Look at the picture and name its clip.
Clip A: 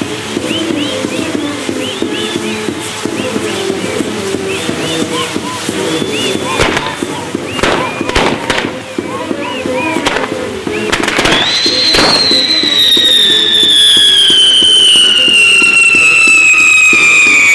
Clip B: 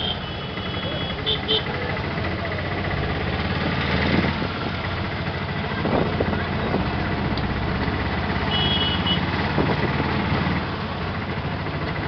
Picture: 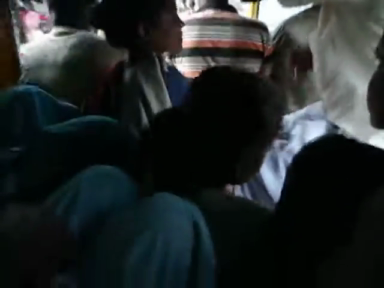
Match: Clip B